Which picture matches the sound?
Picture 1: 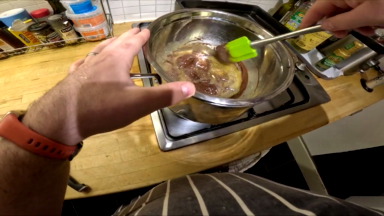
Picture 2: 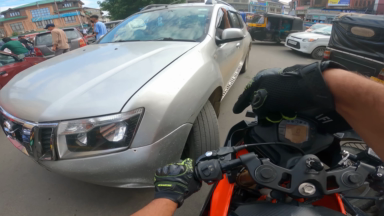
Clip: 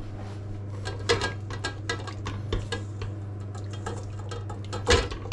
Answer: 1